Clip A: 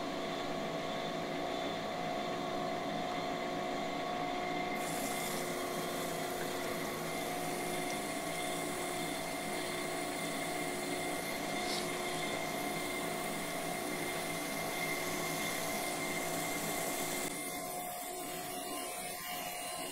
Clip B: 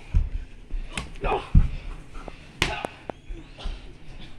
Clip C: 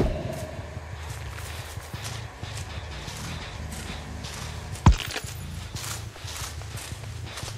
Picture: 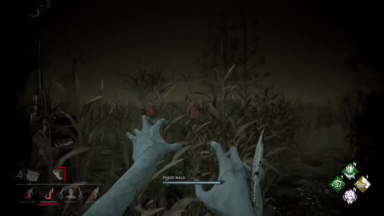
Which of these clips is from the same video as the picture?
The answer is C